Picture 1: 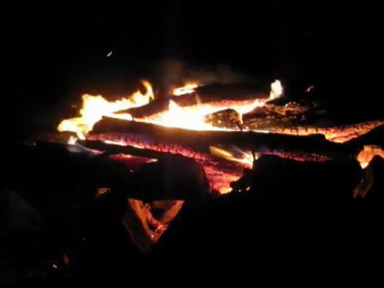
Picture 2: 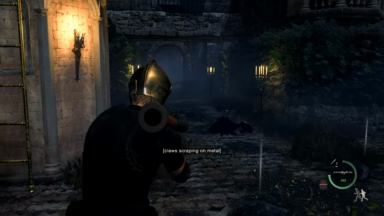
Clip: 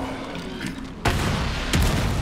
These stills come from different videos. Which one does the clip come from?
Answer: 2